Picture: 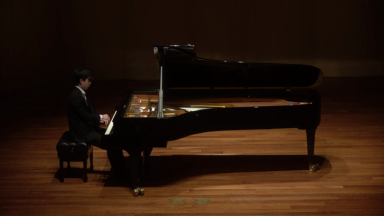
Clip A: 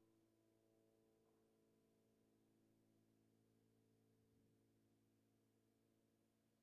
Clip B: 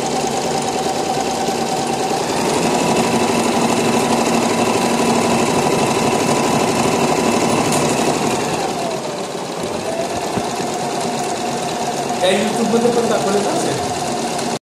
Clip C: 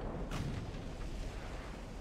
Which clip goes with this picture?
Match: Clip A